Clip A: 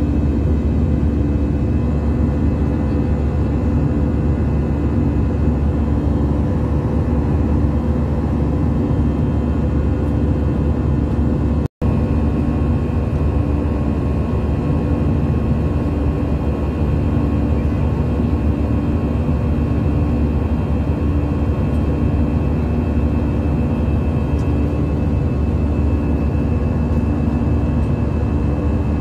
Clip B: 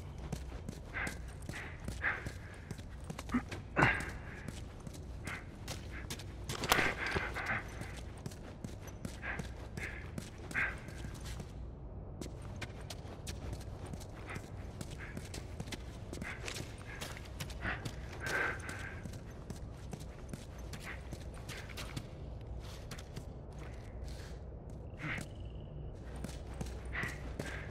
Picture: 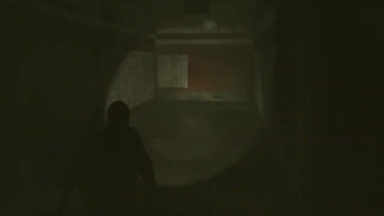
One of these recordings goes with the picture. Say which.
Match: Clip B